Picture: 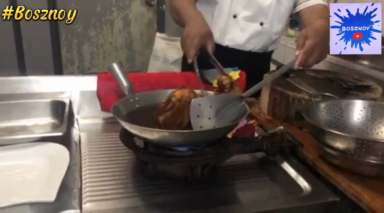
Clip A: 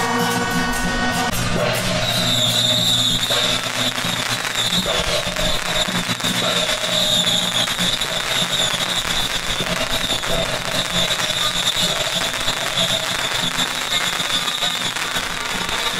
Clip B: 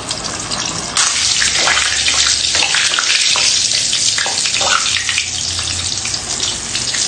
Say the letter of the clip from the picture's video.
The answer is B